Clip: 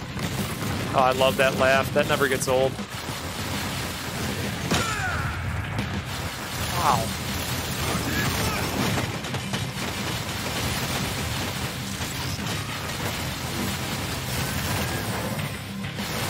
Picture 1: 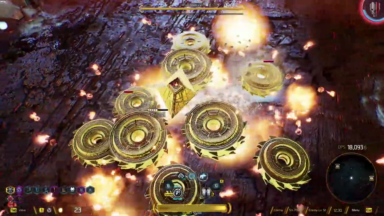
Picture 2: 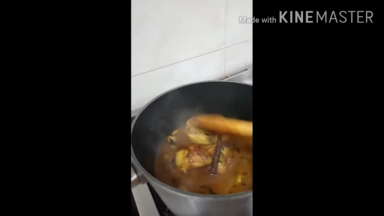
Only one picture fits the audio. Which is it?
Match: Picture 1